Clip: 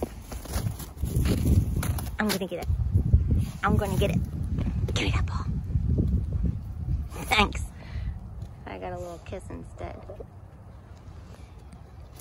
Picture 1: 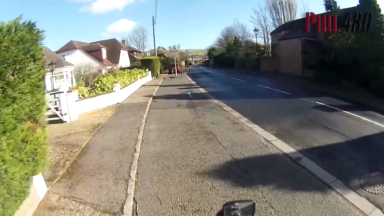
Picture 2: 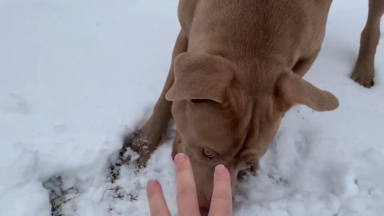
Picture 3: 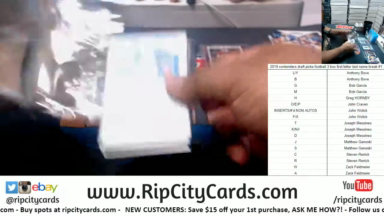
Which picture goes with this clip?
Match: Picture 2